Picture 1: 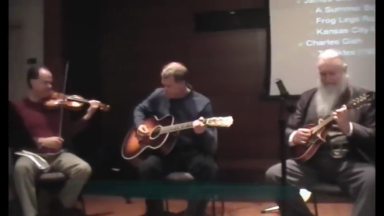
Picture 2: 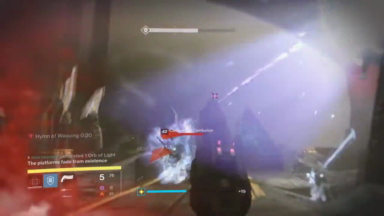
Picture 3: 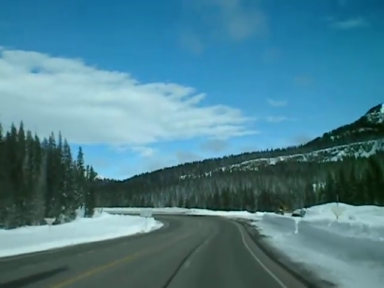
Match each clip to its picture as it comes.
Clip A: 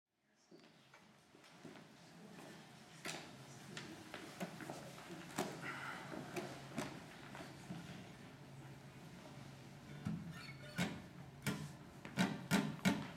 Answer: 1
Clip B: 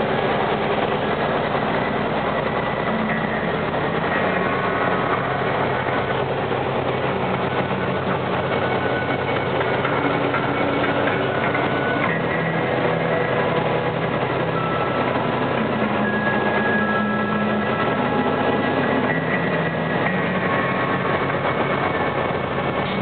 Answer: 3